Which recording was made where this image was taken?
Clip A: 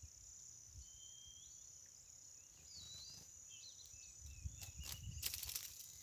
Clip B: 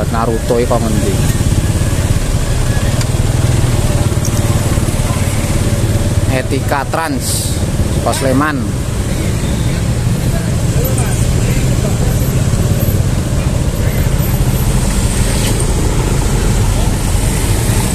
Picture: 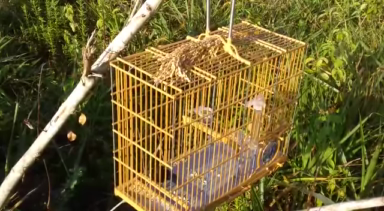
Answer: A